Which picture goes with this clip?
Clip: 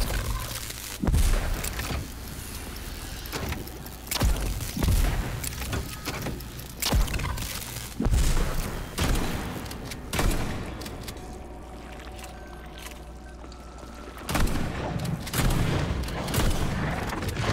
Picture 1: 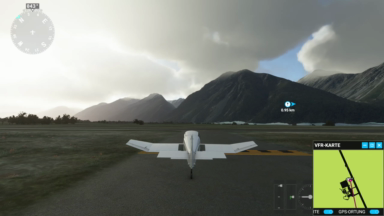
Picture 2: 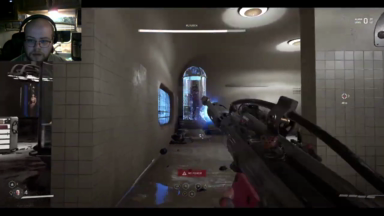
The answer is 2